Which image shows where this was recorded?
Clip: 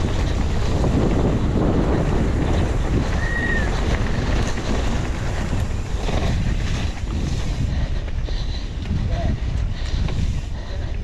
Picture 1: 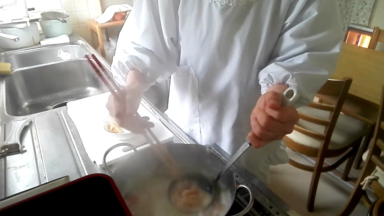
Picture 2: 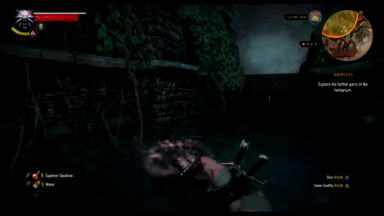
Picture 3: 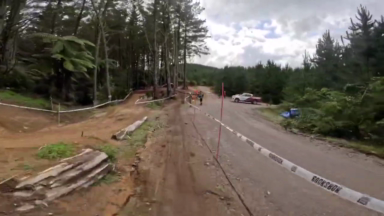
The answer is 3